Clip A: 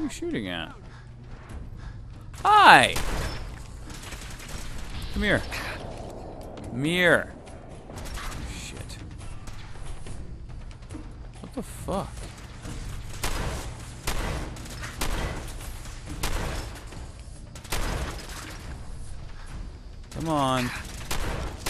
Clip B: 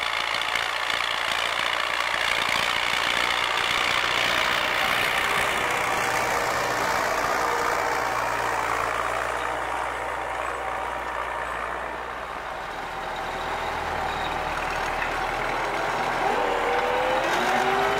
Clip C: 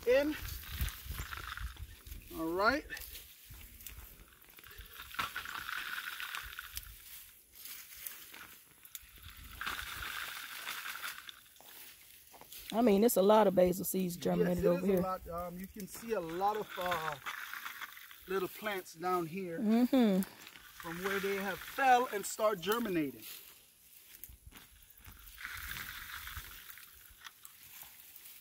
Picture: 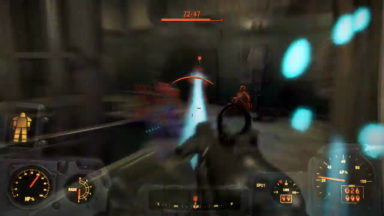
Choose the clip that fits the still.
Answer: A